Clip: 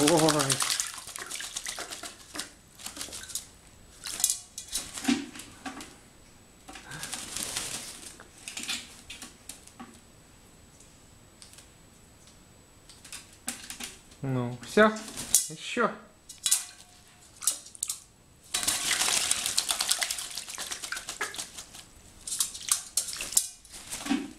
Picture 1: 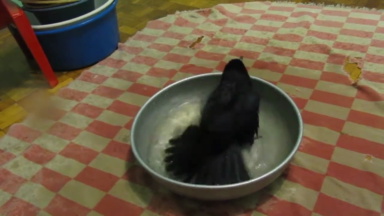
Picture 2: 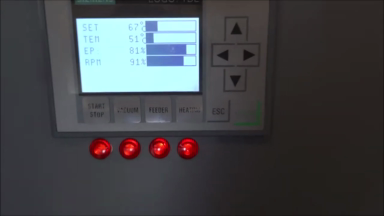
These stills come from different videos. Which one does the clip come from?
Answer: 1